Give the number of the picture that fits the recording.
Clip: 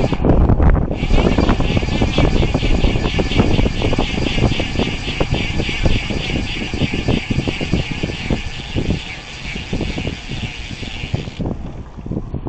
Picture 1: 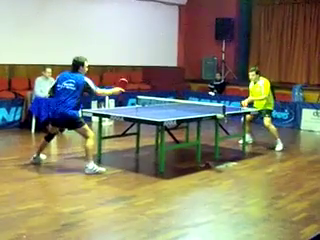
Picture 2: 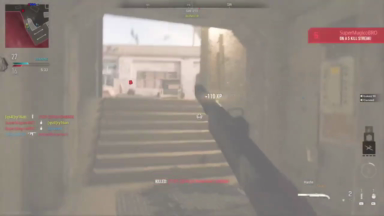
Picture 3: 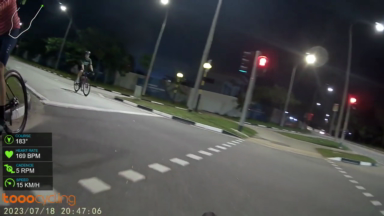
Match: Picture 3